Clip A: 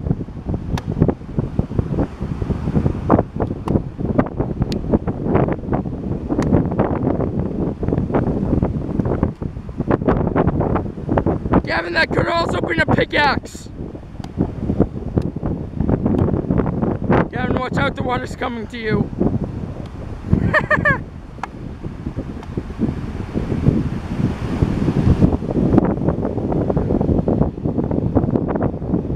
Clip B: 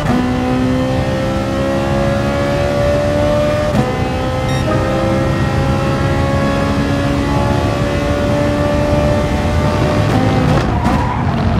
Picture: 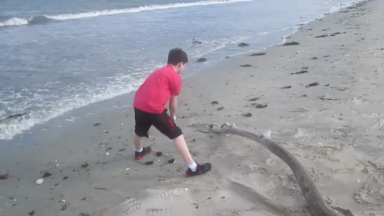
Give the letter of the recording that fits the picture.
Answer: A